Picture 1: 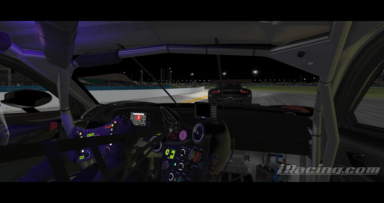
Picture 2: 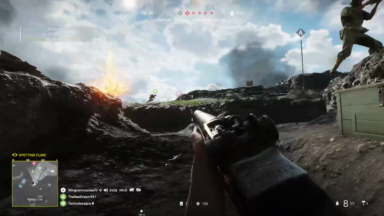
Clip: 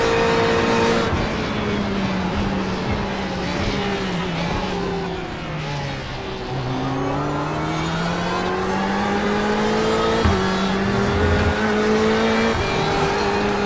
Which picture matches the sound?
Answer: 1